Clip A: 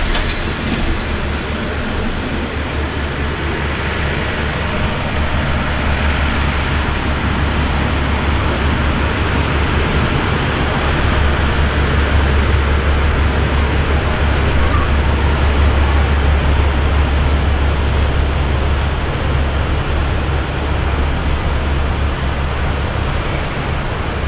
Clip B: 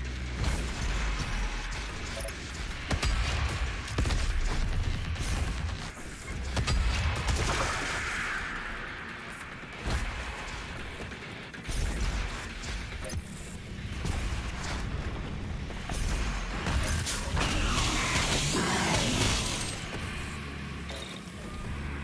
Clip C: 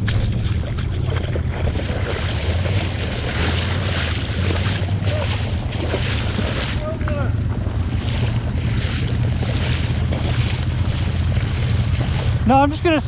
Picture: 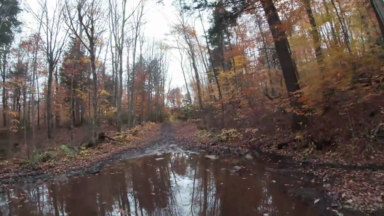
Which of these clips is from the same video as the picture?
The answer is C